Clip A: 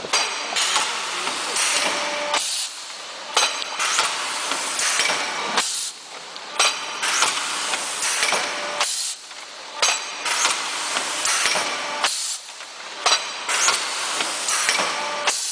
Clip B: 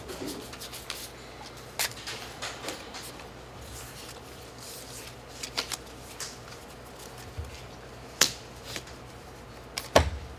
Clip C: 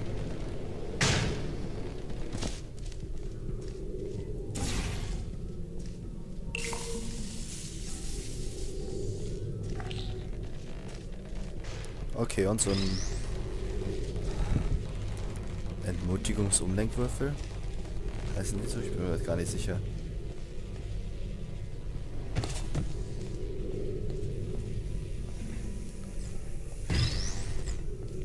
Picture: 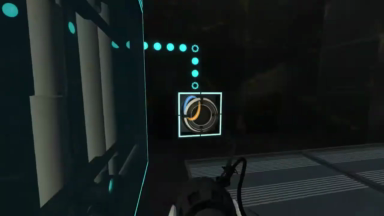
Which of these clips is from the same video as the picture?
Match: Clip C